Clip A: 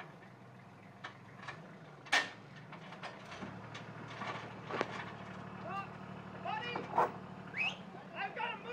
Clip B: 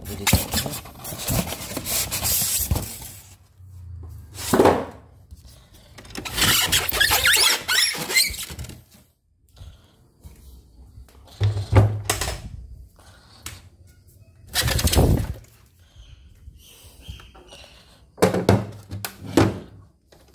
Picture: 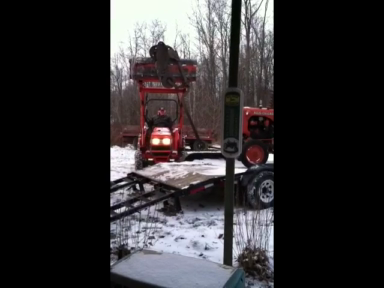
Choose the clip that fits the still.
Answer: A